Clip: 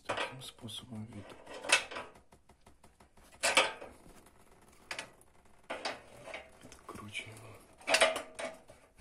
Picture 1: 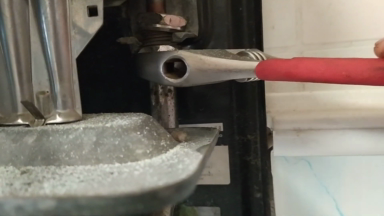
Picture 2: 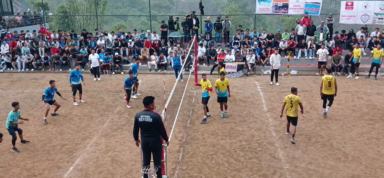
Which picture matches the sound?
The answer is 1